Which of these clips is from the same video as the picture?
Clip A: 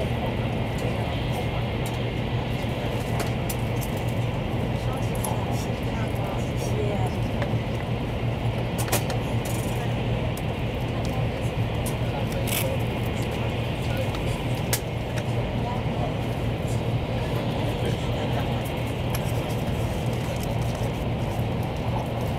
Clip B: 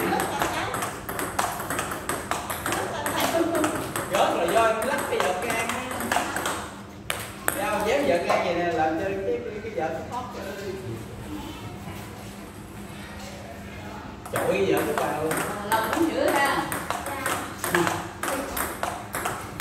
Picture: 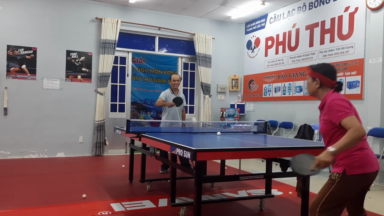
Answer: B